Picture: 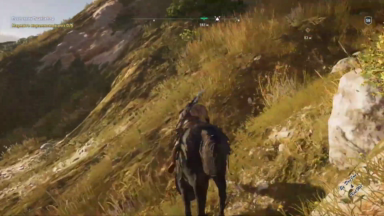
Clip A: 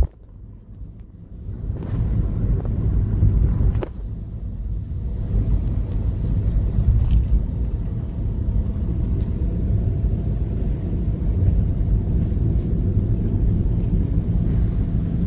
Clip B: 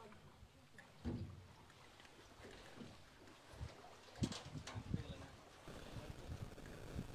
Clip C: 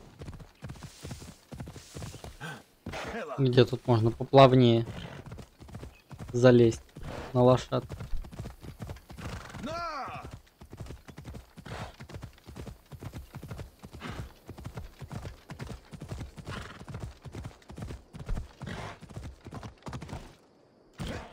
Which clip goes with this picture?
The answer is C